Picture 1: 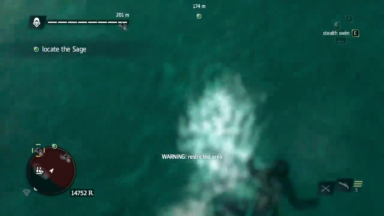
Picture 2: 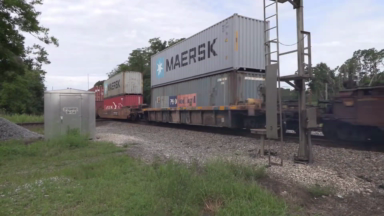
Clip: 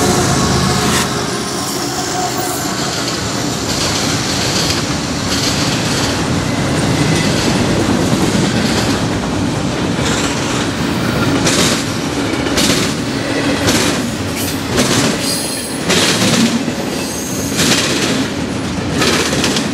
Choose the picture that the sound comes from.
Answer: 2